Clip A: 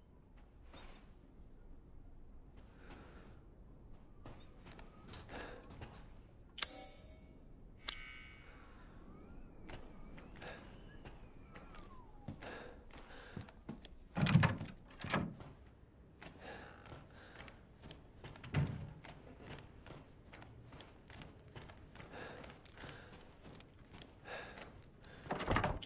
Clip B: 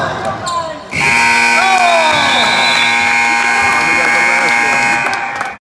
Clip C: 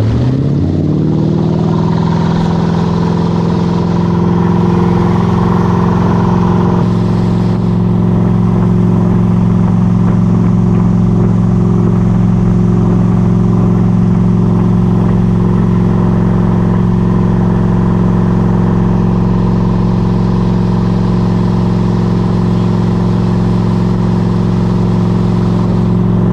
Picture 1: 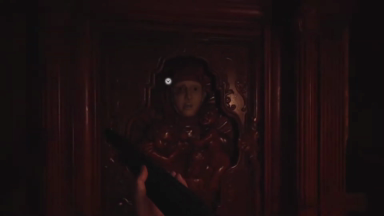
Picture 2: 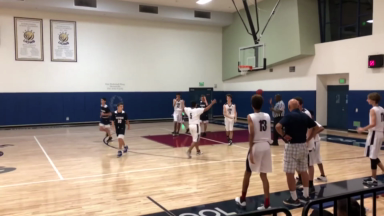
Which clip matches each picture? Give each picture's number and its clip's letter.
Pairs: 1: A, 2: B